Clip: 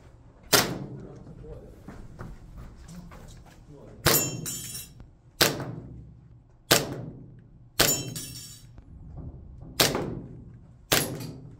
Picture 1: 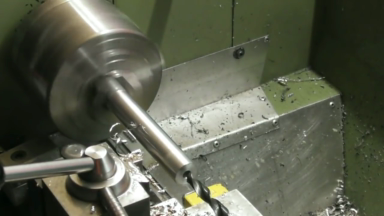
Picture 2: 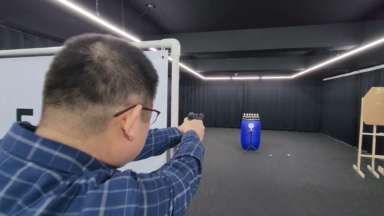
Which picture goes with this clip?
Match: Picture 2